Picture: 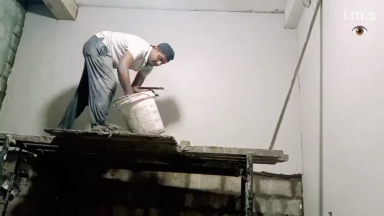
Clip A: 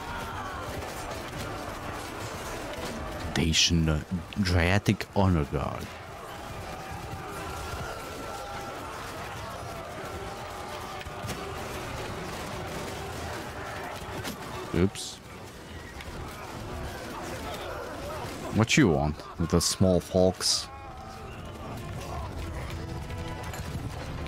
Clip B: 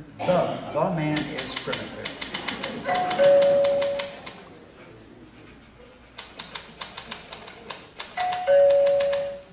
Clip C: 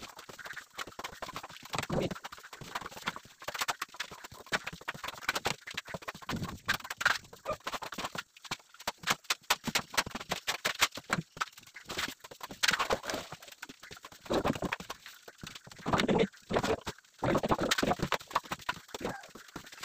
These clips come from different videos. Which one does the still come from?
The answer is C